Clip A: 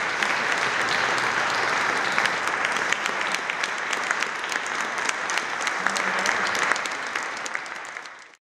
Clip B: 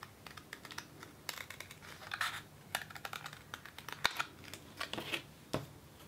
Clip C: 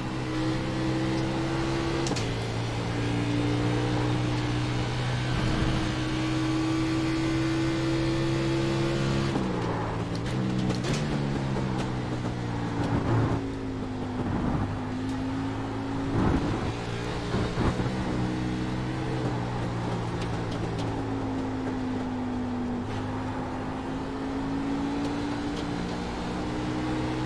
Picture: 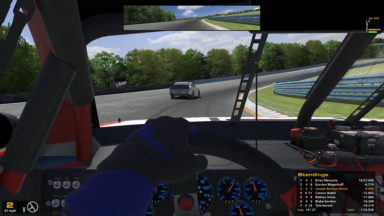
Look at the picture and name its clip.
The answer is C